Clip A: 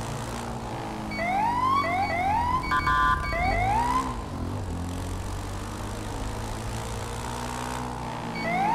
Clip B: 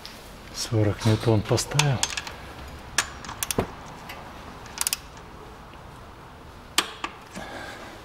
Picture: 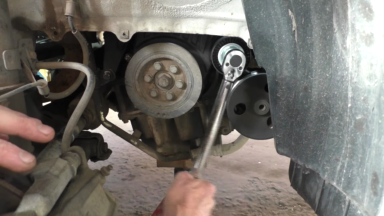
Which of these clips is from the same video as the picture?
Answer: B